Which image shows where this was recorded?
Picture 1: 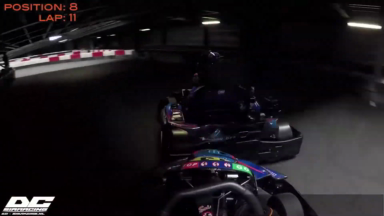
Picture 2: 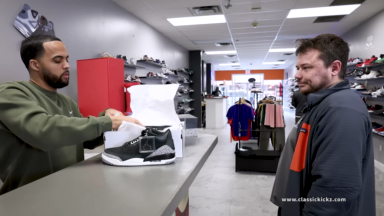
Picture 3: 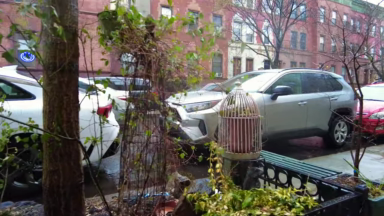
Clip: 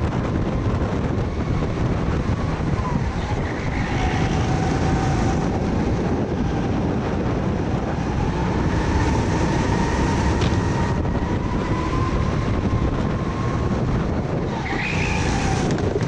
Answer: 1